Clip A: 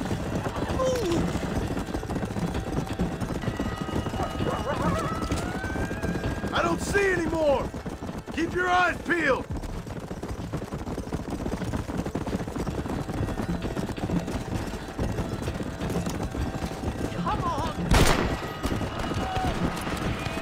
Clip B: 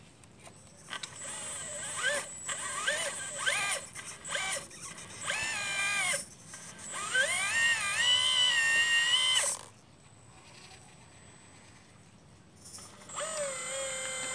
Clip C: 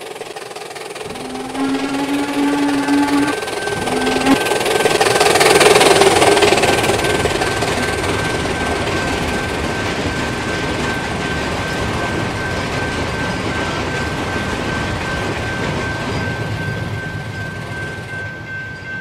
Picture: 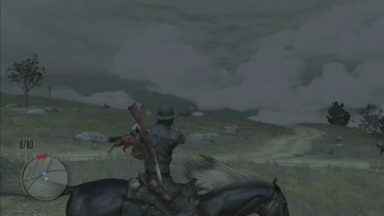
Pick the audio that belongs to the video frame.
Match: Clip A